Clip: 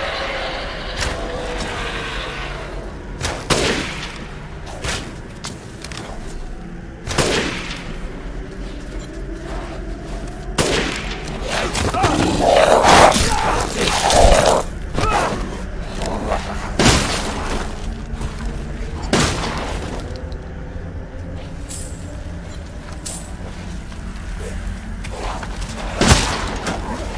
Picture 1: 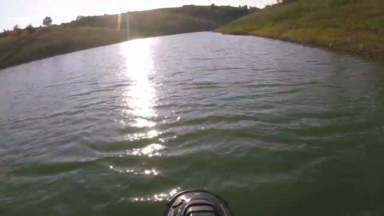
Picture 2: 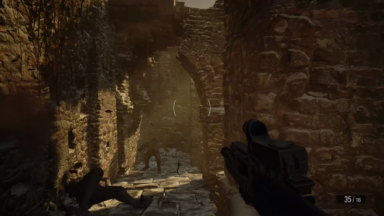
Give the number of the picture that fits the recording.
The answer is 2